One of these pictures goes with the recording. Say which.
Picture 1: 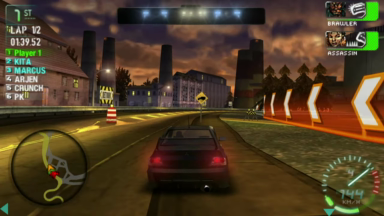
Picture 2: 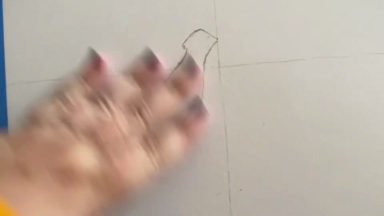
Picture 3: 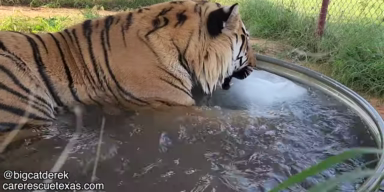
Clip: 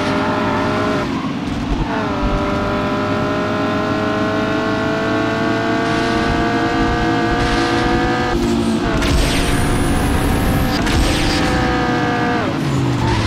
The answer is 1